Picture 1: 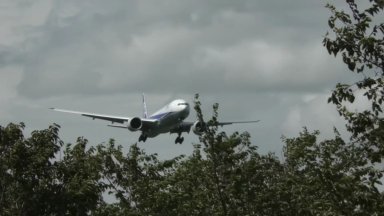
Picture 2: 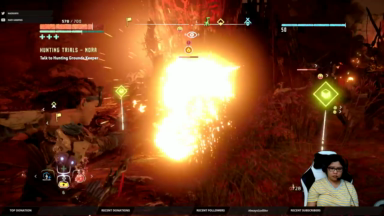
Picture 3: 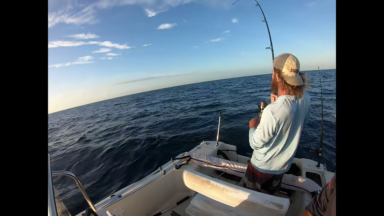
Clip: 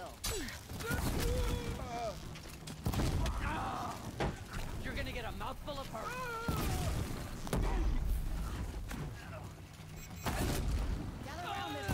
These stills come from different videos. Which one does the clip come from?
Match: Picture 2